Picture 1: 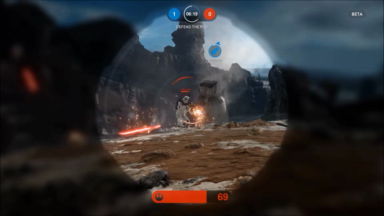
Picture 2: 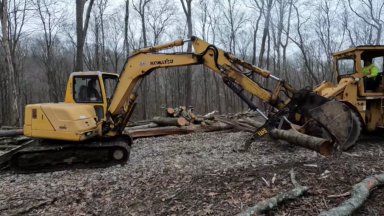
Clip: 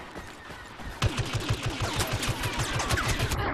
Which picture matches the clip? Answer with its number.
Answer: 1